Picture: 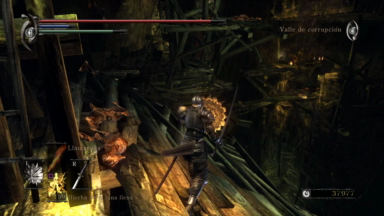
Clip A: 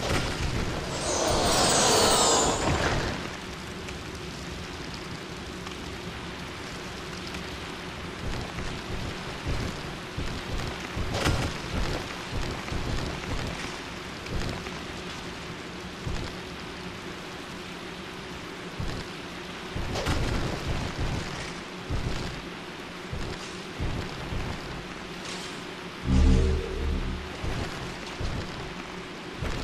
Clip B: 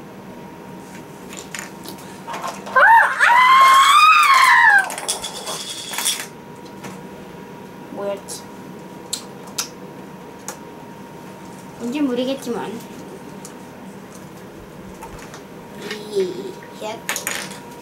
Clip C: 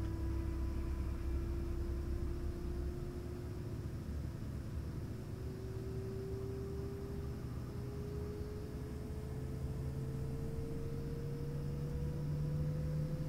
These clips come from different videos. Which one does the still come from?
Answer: A